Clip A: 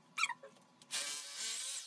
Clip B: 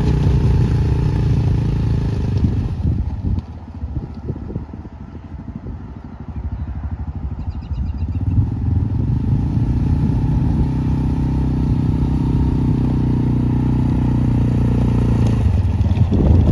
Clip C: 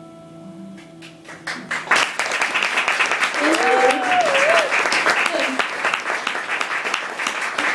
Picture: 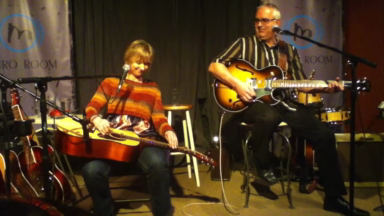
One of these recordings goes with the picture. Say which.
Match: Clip C